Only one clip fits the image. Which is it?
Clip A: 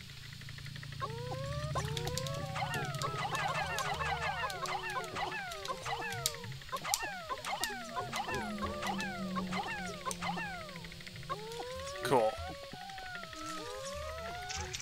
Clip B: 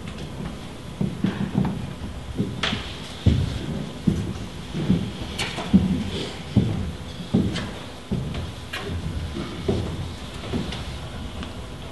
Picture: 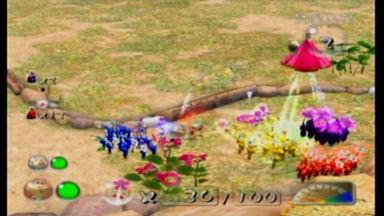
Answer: A